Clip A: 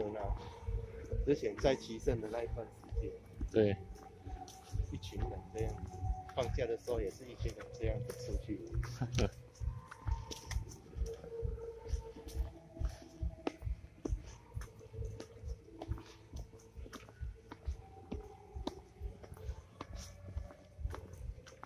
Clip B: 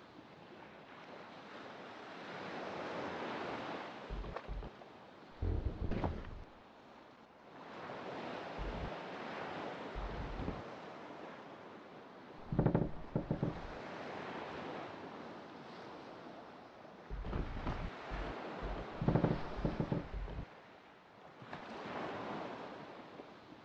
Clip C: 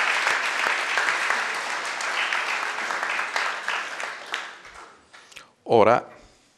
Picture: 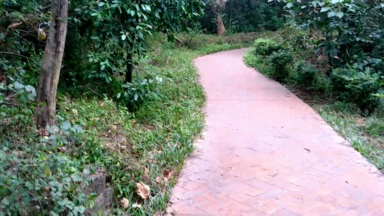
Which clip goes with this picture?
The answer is A